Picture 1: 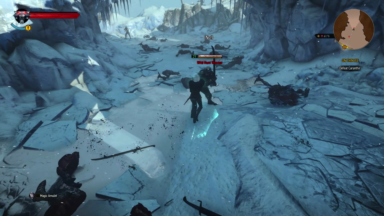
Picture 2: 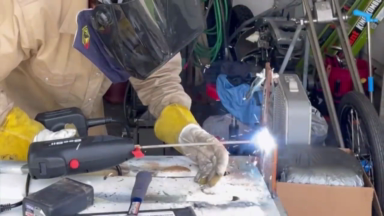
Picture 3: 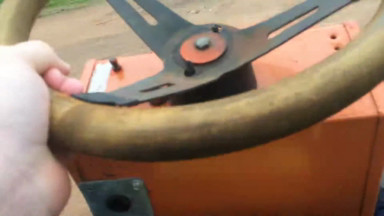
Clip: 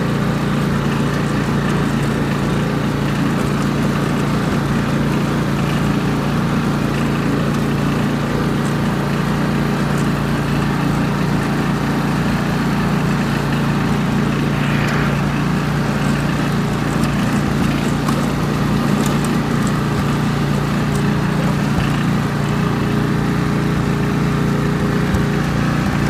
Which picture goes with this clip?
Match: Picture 3